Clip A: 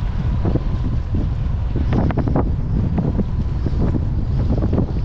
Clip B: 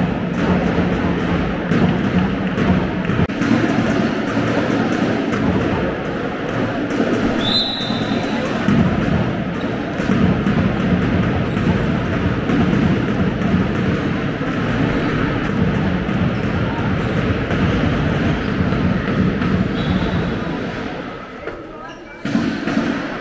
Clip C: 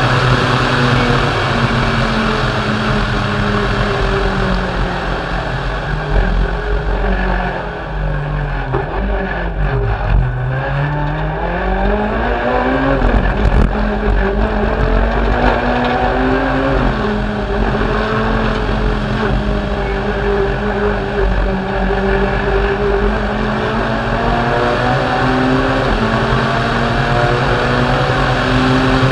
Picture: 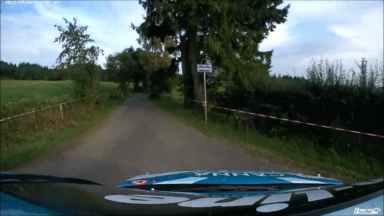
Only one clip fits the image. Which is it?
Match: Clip C